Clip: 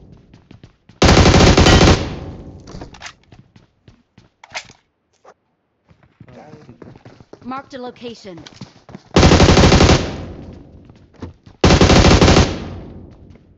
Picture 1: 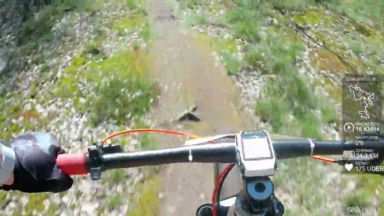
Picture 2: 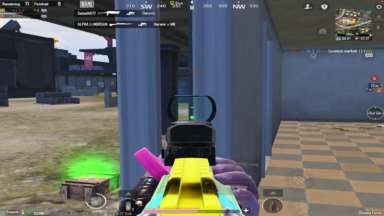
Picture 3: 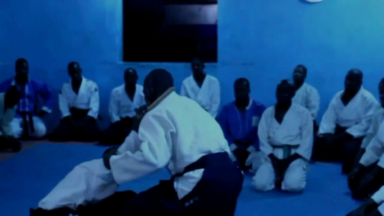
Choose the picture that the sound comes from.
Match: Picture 2